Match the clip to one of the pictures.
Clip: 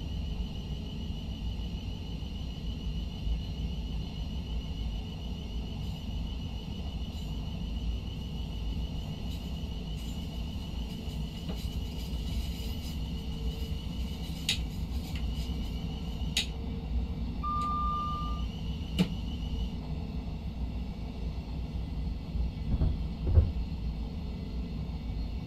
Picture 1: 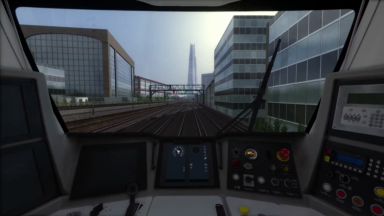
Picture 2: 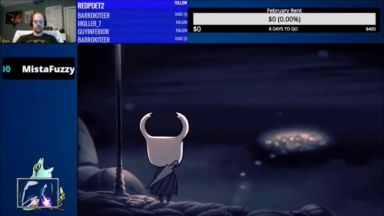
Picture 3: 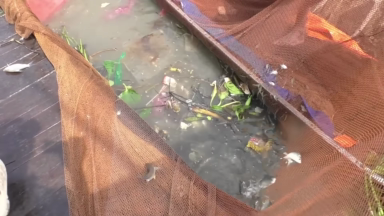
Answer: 1